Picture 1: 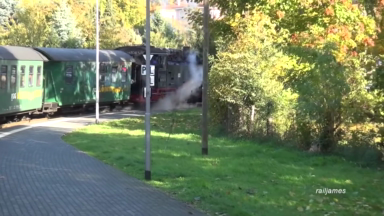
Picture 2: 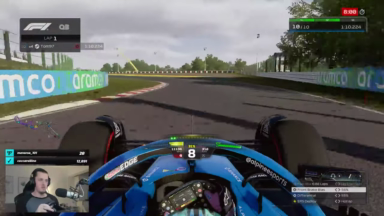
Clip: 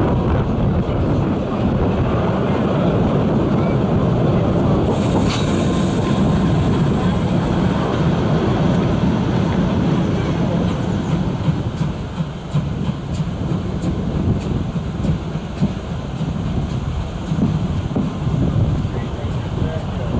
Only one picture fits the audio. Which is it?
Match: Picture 1